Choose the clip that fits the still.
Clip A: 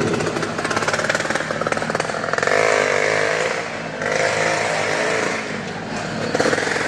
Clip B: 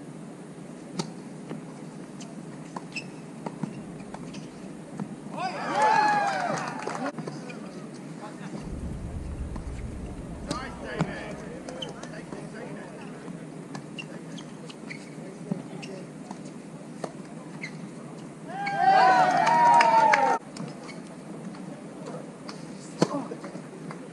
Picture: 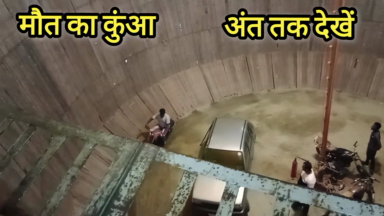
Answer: A